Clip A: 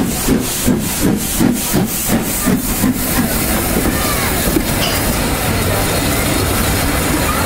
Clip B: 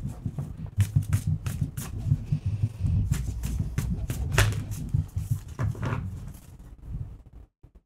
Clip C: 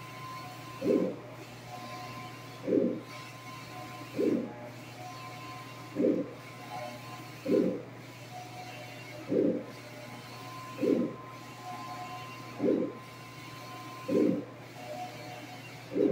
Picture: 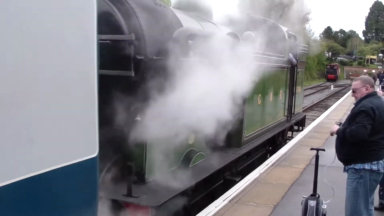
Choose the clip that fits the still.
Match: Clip A